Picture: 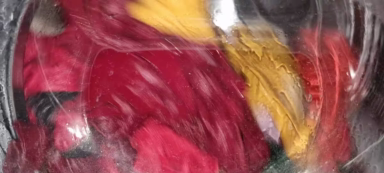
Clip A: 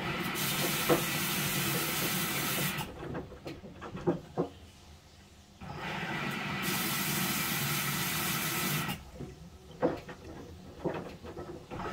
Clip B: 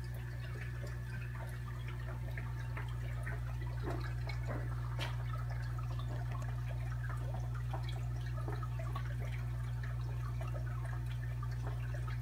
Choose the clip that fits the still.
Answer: A